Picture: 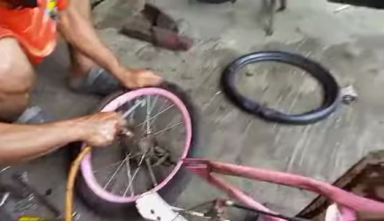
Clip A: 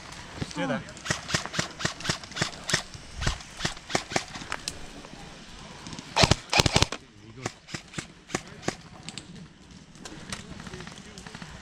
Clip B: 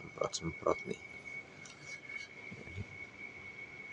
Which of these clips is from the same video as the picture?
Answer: B